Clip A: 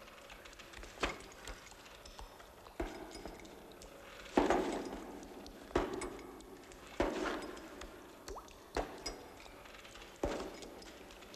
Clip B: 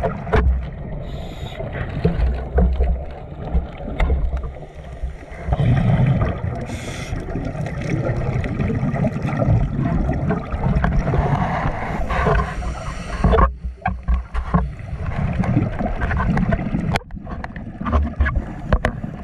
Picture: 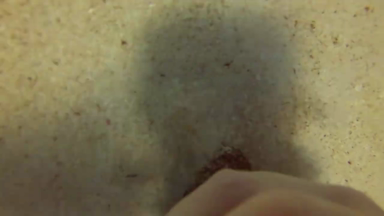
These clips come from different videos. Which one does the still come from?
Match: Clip B